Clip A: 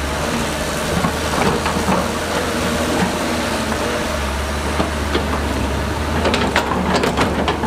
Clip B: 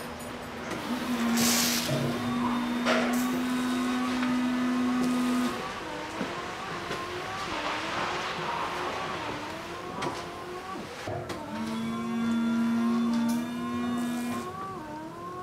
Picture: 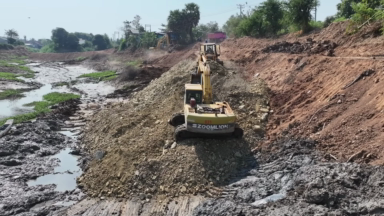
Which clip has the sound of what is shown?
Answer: A